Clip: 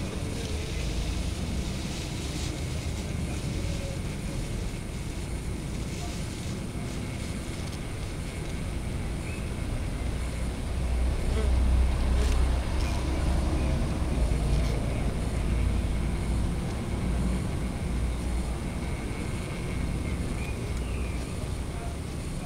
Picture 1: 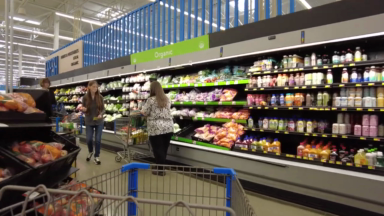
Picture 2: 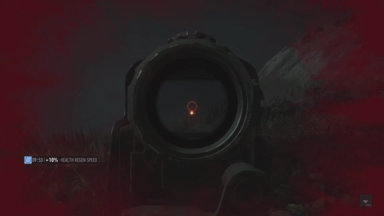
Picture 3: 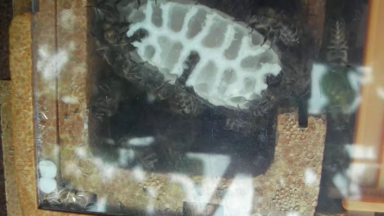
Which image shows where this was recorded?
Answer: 3